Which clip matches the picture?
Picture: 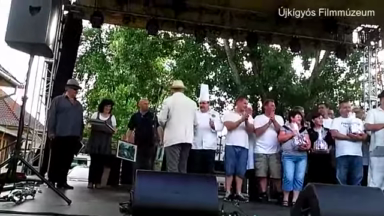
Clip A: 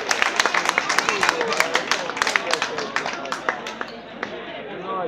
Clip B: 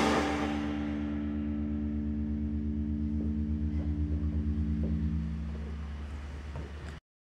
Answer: A